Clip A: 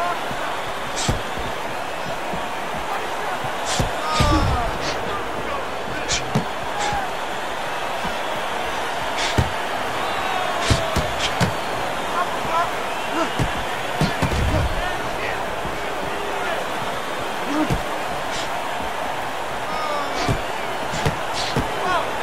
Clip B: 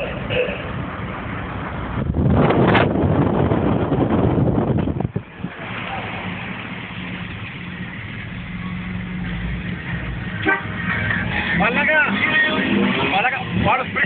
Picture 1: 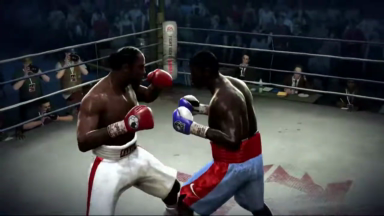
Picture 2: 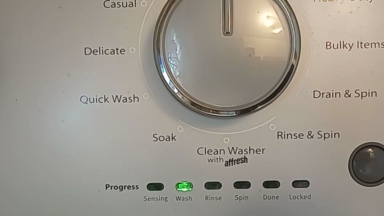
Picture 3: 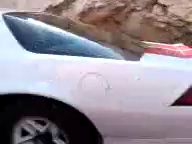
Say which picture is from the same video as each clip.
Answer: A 1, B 3